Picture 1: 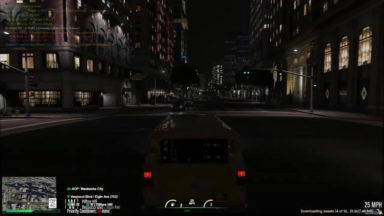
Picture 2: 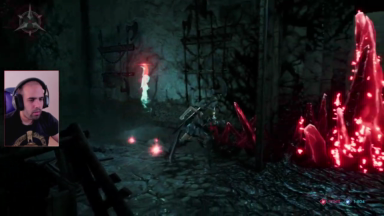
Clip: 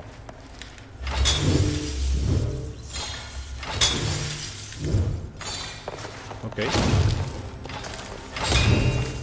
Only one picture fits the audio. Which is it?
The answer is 2